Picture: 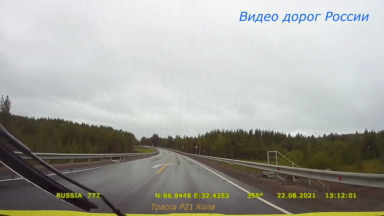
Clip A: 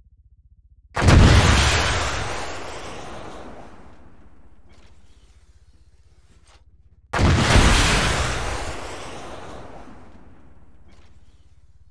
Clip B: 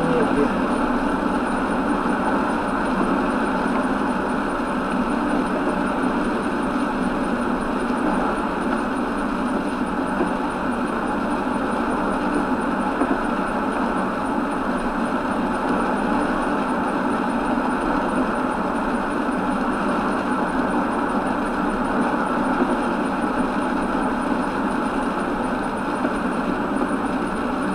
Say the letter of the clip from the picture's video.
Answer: B